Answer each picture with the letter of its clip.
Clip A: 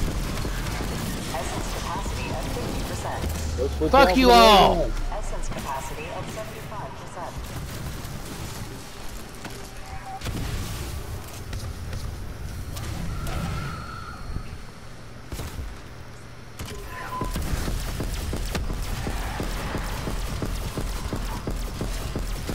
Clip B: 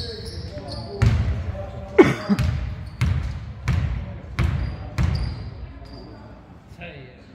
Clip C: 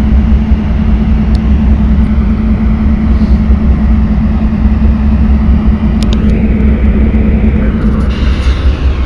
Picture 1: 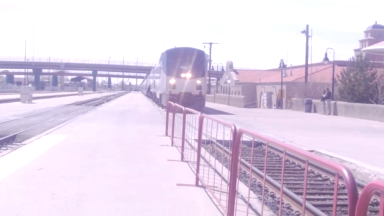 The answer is C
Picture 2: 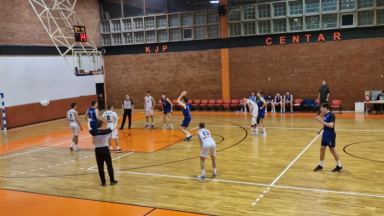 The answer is B